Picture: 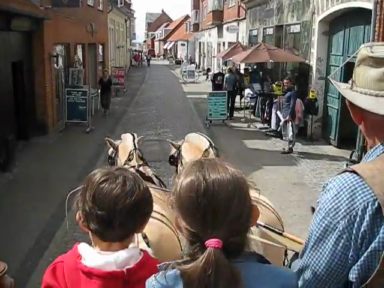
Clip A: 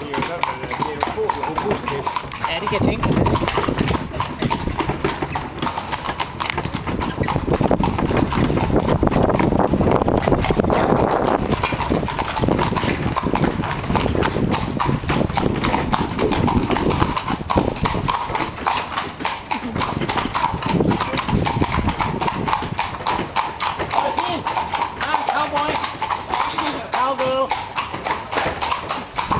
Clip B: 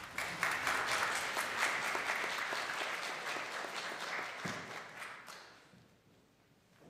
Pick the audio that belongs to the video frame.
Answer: A